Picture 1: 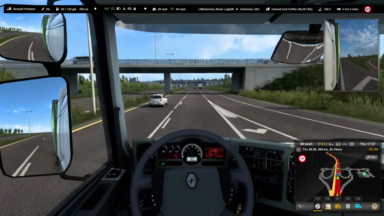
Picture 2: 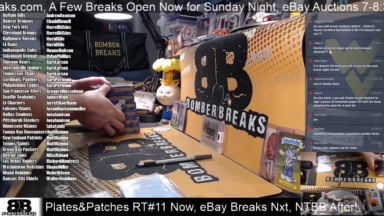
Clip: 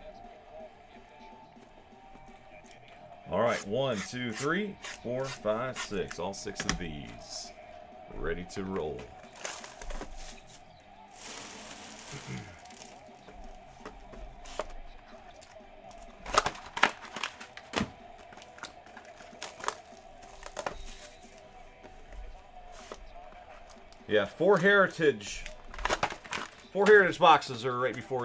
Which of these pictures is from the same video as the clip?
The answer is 2